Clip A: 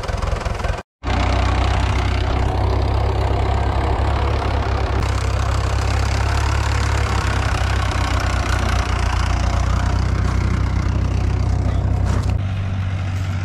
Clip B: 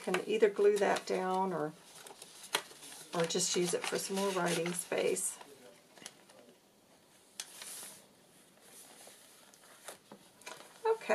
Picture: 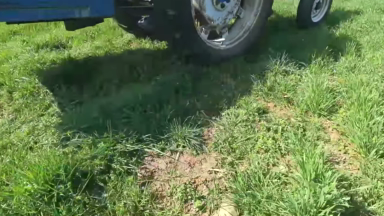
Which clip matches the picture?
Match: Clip A